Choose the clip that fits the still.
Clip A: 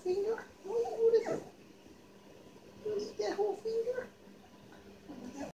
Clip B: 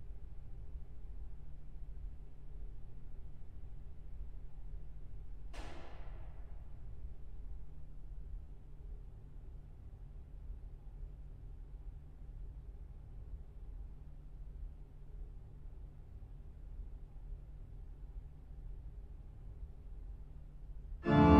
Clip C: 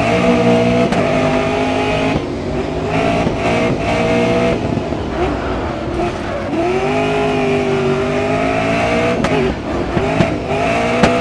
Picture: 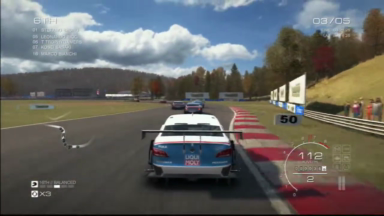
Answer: C